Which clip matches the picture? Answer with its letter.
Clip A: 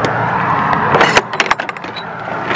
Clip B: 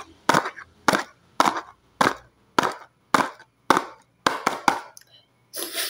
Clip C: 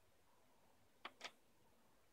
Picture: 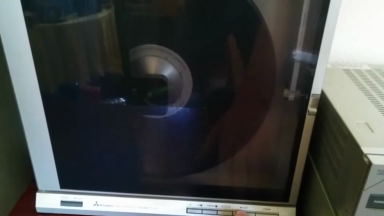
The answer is C